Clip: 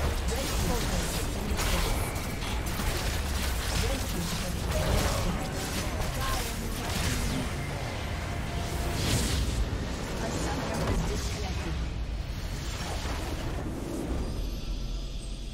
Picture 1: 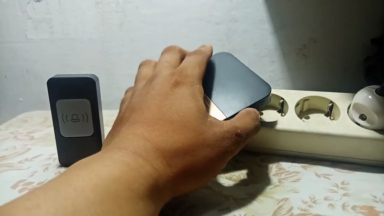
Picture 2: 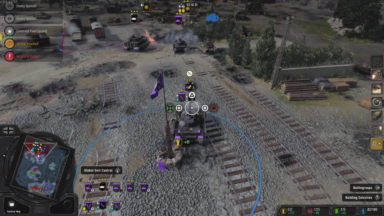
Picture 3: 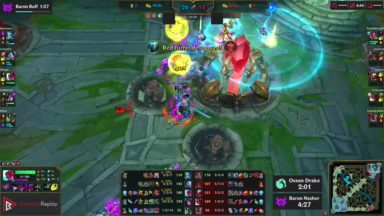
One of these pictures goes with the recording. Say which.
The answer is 3